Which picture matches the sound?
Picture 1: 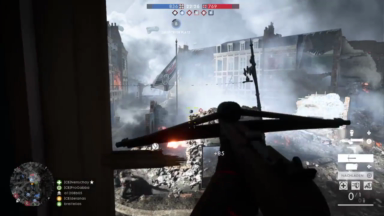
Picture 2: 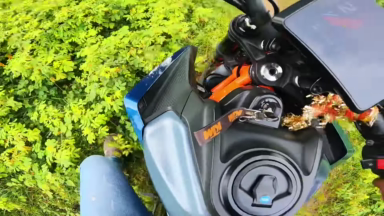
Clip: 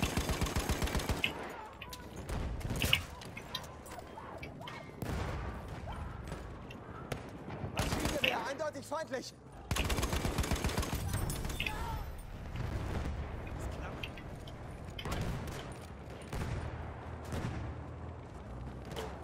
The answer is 1